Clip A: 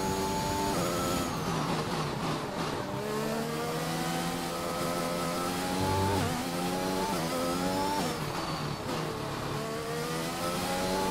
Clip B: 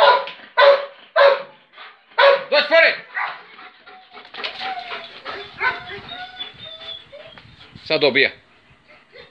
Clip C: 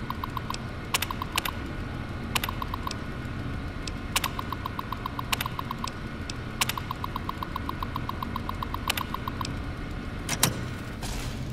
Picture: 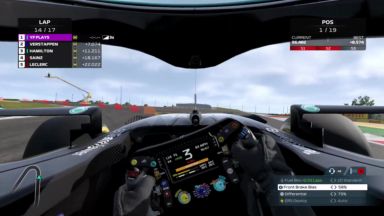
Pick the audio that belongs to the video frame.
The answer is A